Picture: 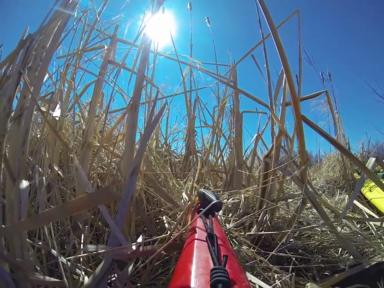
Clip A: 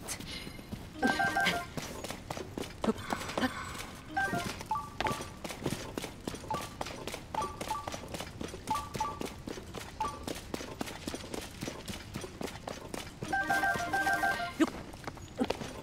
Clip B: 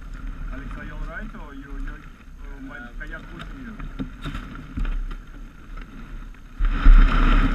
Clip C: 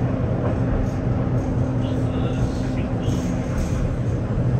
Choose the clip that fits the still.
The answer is B